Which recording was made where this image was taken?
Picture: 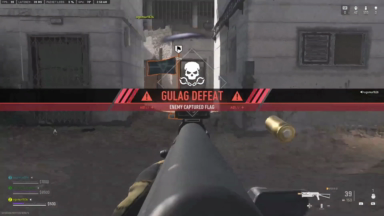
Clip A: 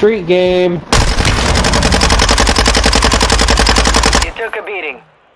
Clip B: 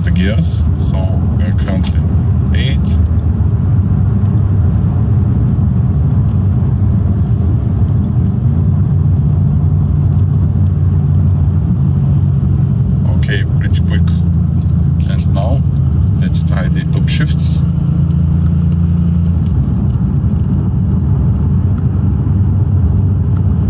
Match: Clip A